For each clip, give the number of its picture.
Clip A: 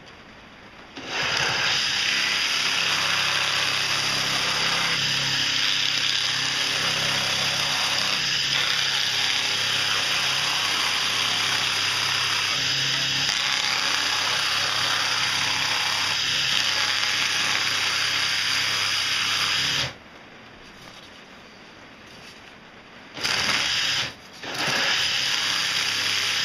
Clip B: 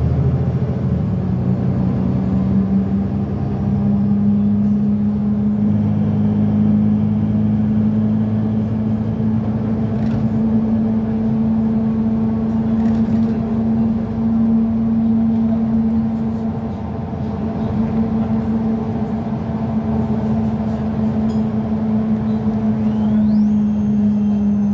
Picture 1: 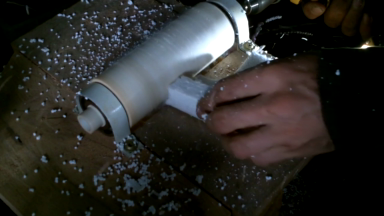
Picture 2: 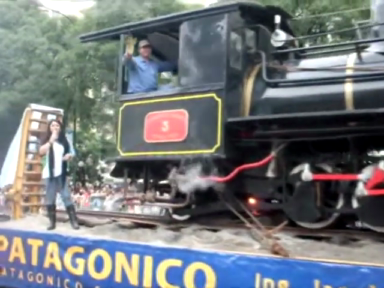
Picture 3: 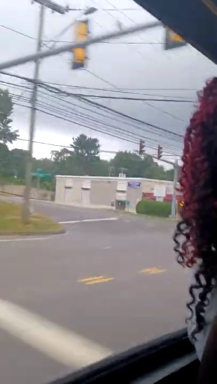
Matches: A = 1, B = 3